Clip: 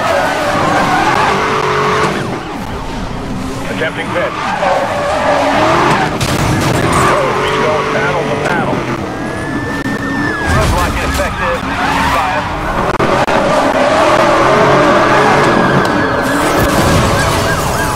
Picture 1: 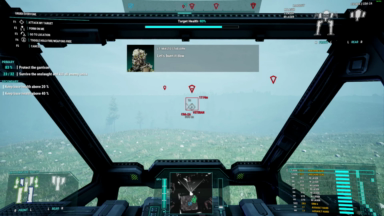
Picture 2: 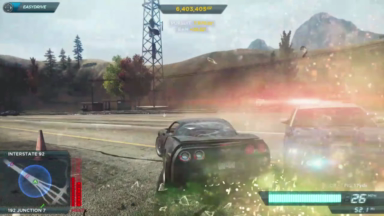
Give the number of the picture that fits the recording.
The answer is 2